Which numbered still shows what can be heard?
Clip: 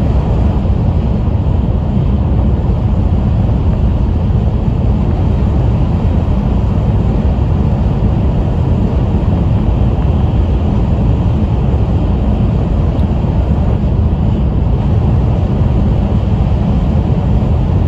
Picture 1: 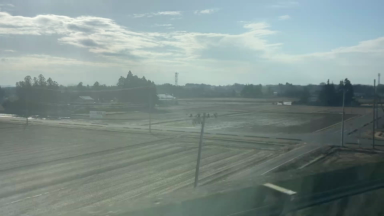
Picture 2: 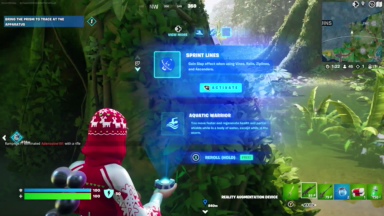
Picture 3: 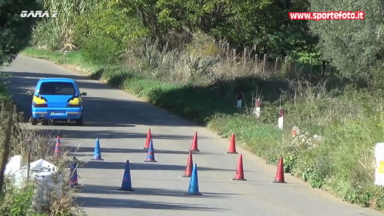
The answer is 1